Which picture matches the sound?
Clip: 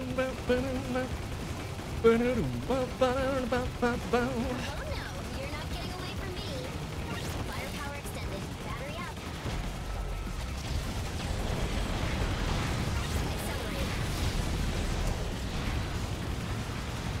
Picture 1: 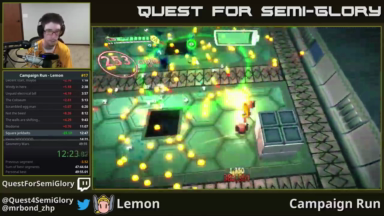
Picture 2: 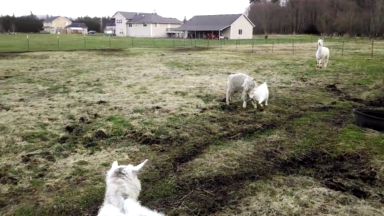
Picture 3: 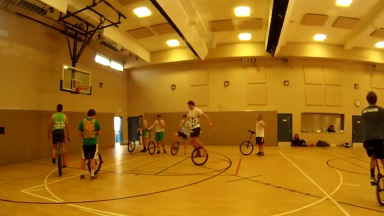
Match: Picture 1